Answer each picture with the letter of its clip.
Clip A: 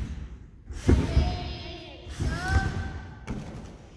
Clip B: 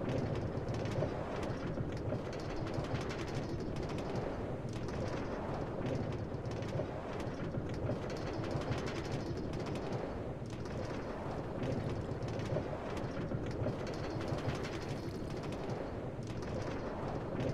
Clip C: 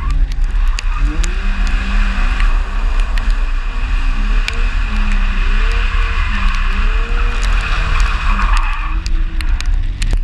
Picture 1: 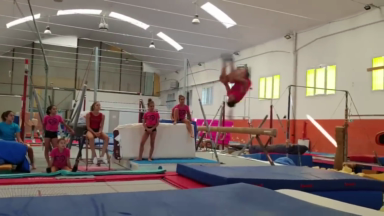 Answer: A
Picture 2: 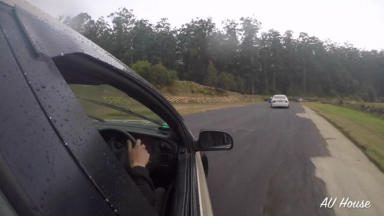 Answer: C